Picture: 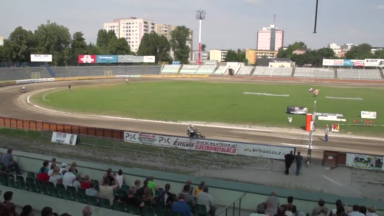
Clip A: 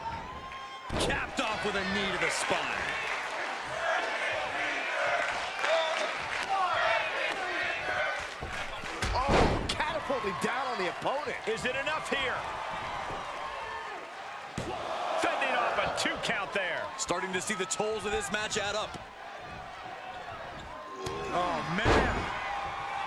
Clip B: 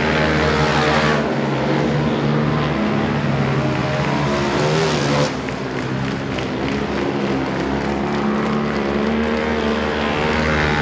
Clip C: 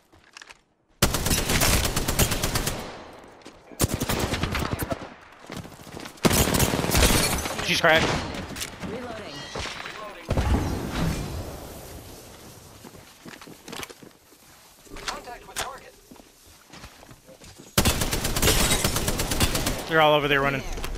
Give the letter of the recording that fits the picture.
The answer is B